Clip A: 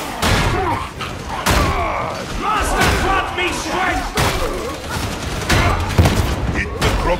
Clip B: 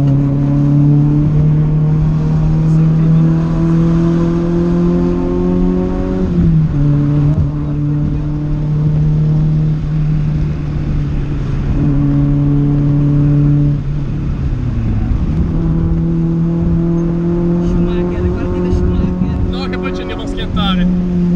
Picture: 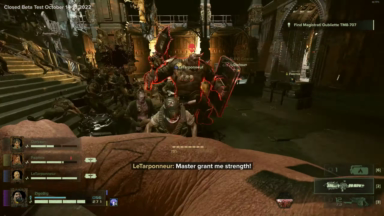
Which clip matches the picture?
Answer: A